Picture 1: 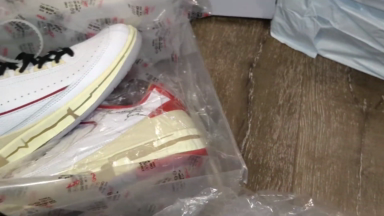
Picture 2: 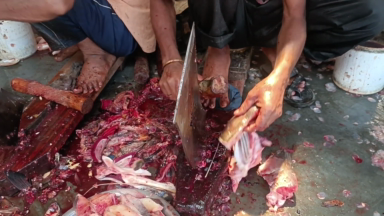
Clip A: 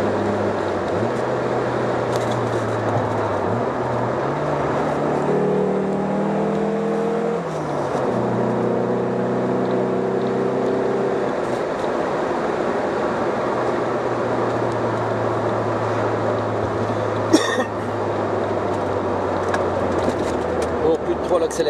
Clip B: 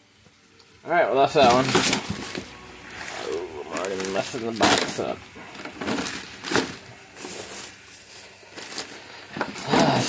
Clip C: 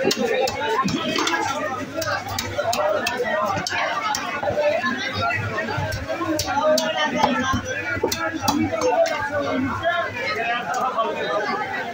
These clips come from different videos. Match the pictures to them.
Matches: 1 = B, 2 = C